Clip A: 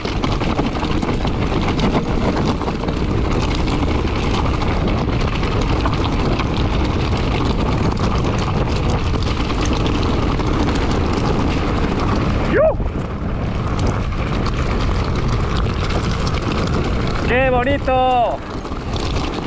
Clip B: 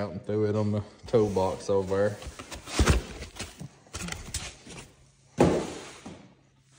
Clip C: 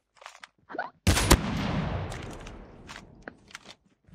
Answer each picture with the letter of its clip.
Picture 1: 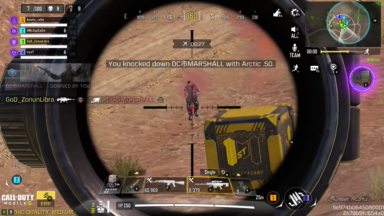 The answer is C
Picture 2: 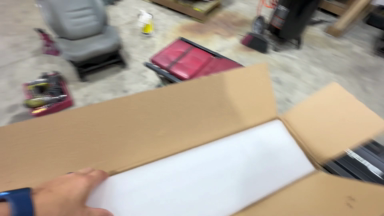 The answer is B